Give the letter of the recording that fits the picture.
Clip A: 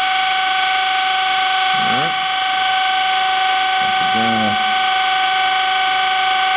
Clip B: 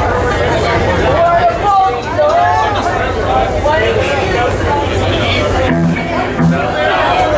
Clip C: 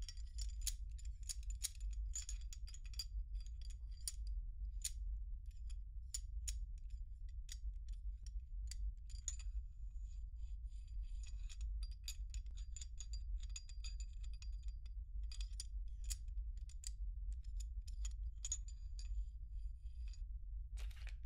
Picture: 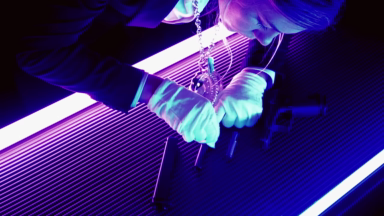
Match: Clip C